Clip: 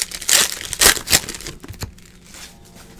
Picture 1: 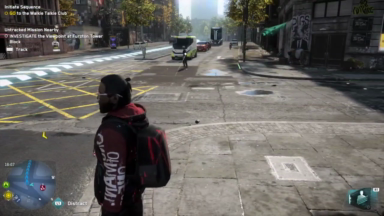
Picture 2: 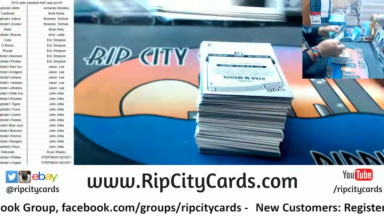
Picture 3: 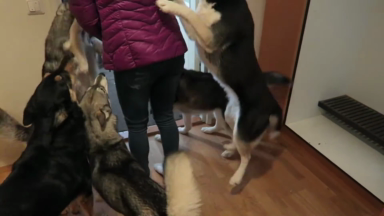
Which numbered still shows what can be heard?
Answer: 2